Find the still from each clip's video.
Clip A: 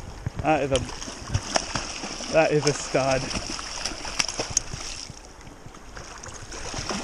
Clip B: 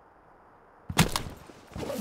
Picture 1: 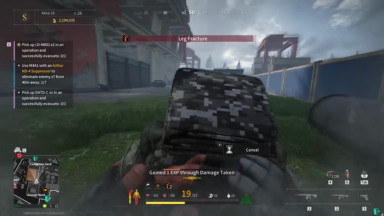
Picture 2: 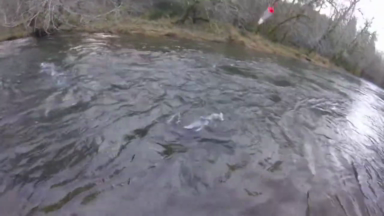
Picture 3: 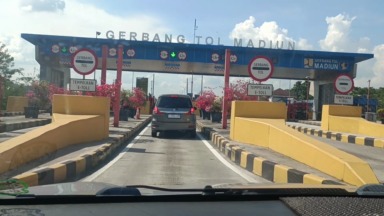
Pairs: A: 2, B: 1